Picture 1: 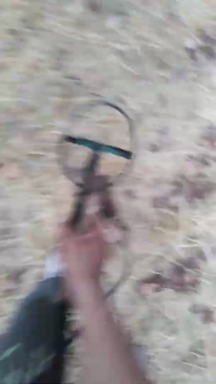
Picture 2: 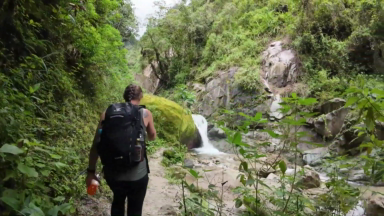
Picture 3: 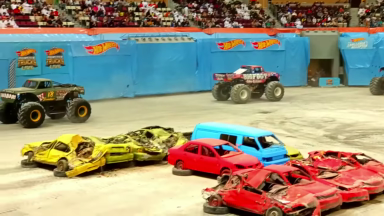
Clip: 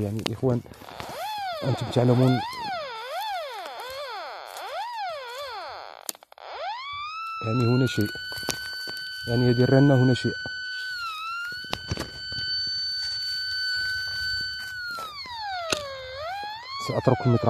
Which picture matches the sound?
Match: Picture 1